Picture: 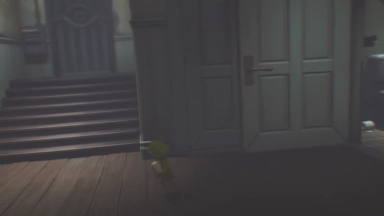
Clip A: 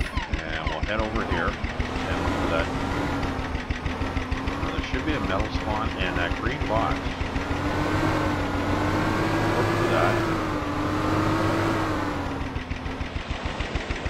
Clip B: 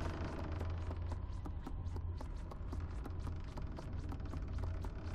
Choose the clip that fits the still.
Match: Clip B